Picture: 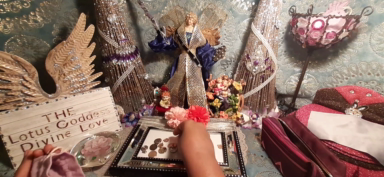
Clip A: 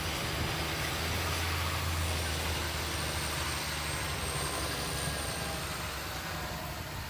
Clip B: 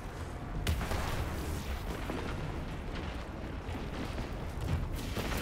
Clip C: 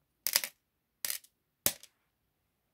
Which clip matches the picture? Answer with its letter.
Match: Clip C